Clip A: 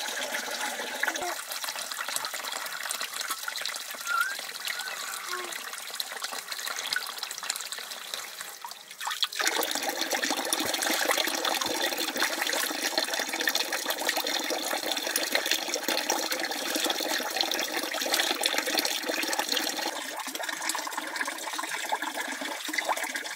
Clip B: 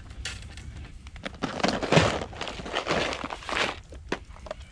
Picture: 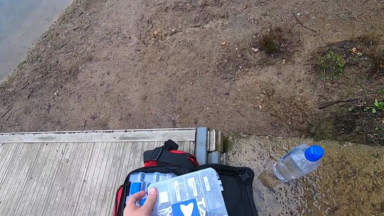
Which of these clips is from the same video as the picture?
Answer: B